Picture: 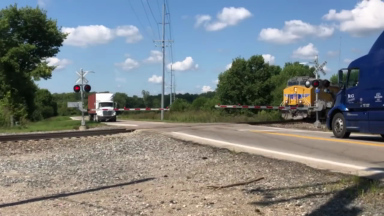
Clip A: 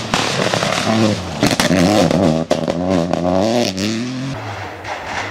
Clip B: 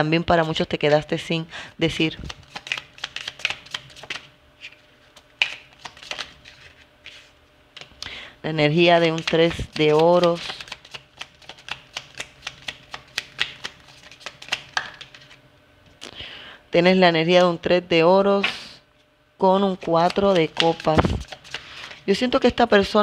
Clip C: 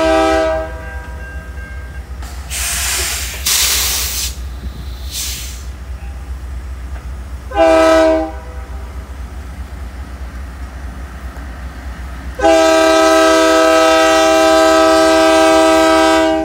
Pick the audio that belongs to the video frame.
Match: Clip C